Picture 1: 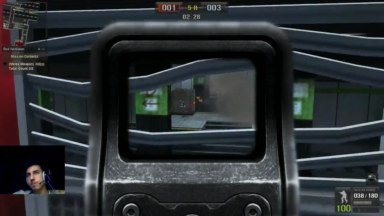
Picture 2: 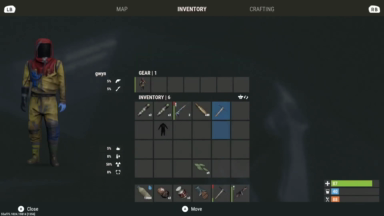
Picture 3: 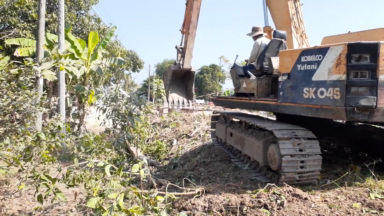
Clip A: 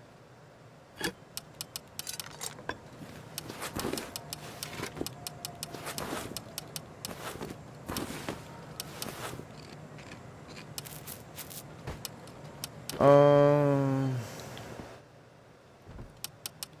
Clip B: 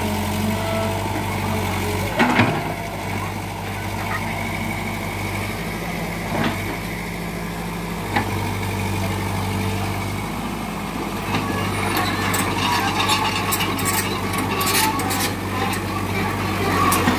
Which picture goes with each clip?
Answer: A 2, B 3